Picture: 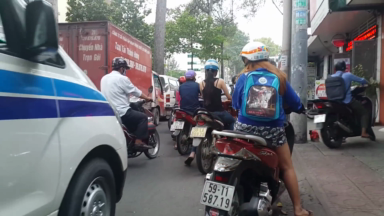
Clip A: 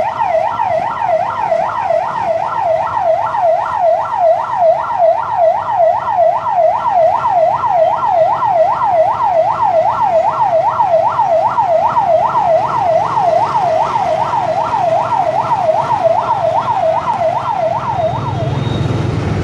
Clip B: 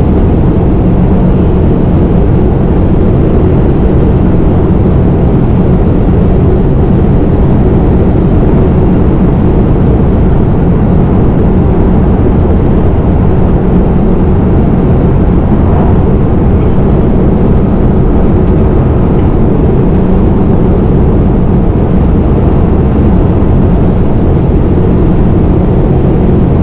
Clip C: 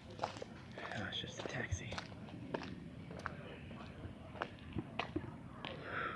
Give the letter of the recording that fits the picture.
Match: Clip A